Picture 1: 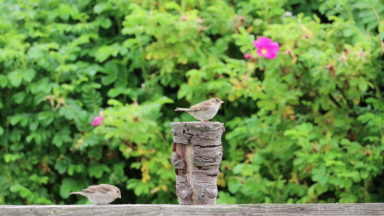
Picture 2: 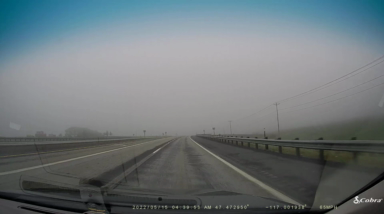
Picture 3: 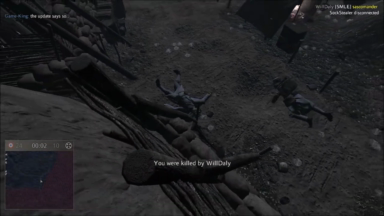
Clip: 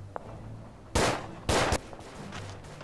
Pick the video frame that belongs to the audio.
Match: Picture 3